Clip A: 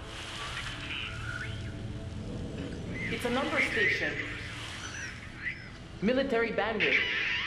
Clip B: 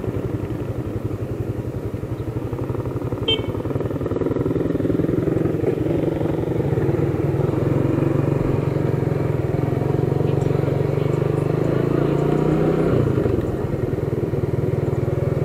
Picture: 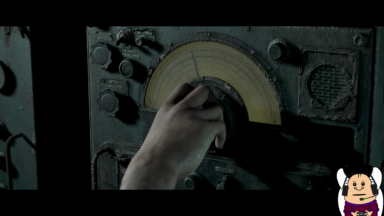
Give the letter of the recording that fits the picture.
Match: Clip A